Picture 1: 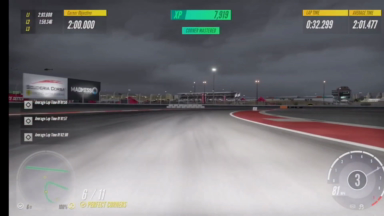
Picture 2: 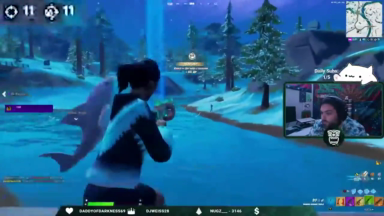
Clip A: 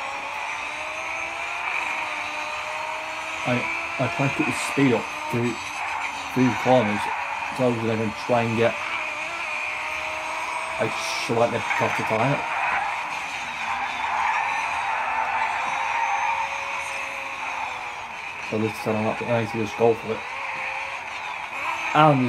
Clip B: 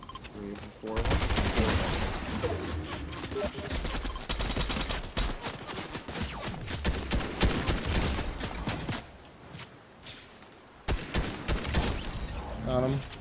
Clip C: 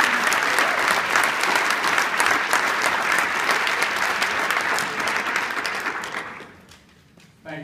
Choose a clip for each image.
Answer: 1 A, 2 B